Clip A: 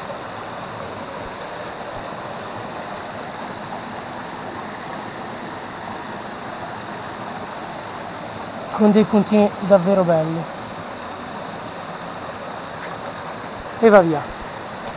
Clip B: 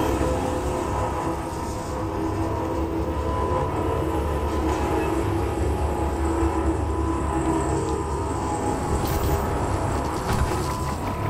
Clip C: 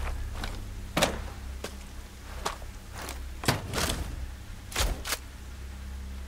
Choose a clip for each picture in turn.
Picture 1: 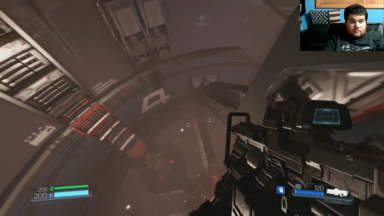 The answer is B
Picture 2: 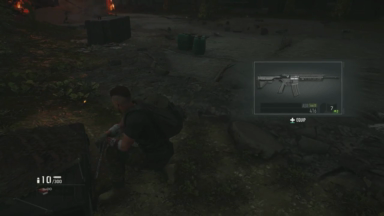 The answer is C